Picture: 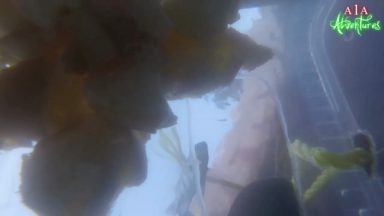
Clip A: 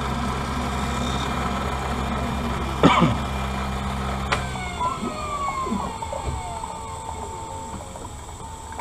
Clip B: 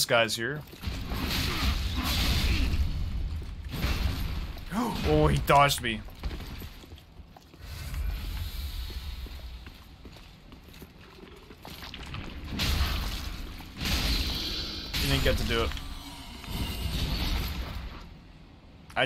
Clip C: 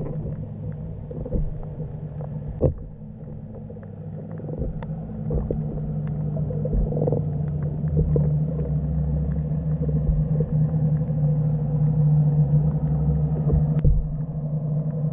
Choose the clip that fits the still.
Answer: C